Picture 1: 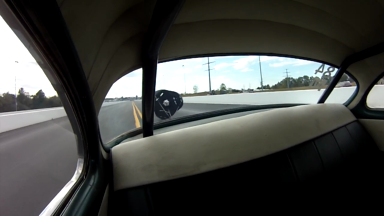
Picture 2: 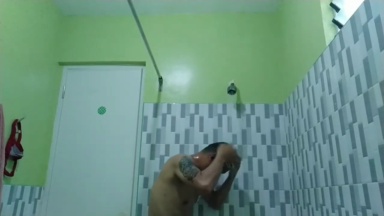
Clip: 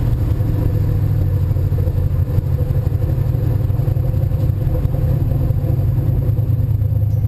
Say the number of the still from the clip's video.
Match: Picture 1